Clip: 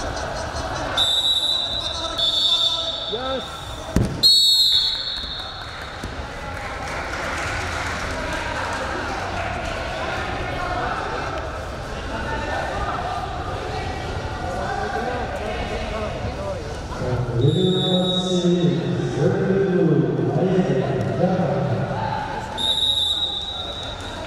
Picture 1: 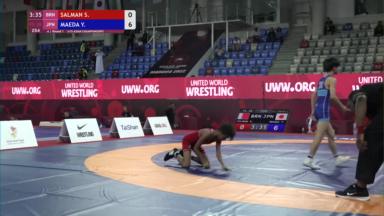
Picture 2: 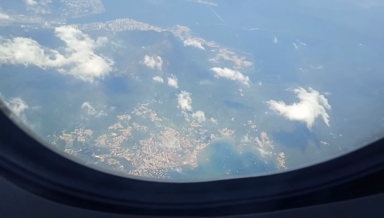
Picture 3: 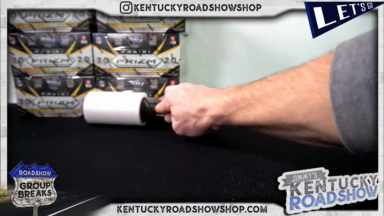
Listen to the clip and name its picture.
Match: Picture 1